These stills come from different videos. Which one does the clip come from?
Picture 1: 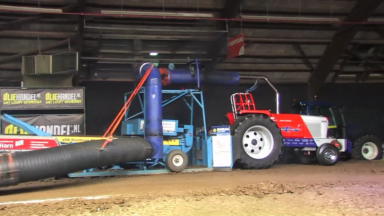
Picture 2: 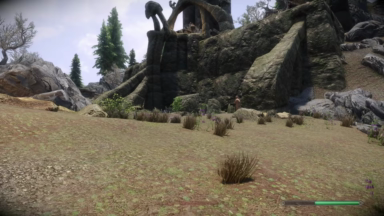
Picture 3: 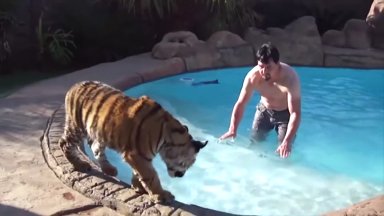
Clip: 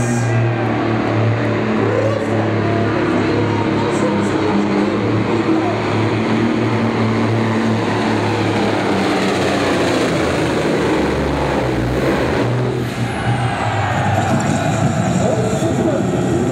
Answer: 1